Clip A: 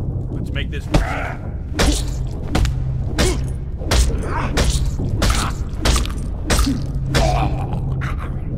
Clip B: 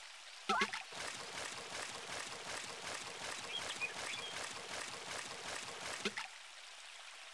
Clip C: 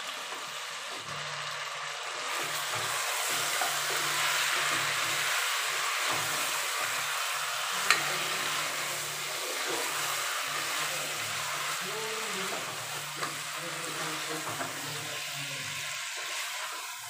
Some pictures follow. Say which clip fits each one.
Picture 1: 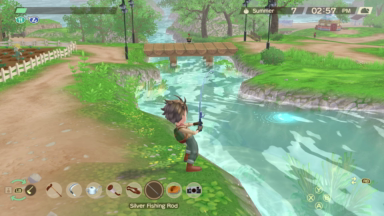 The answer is B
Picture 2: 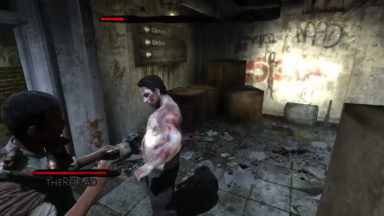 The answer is A